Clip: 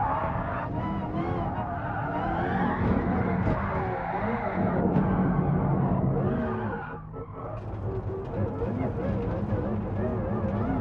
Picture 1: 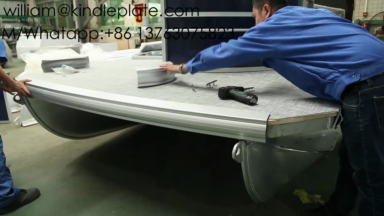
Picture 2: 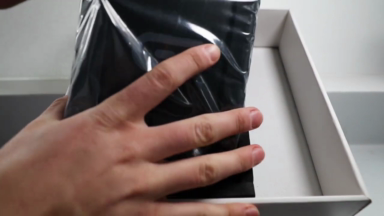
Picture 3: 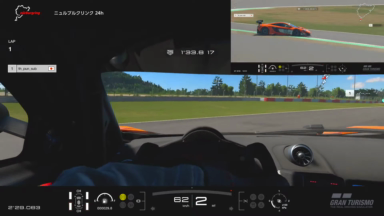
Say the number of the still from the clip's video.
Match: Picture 3